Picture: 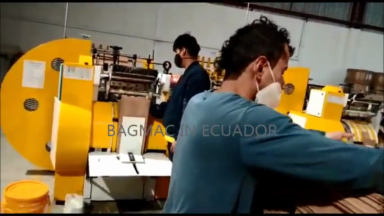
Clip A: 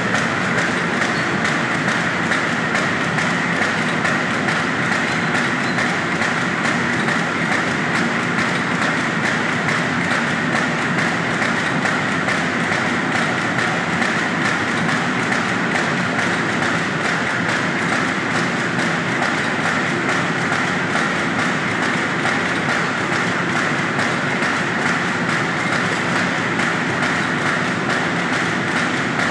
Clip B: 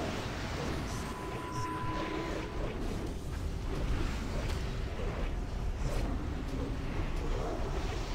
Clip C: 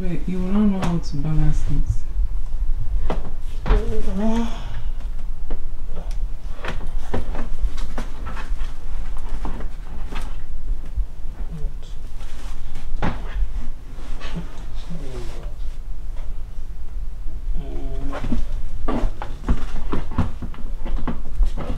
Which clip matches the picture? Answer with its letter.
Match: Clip A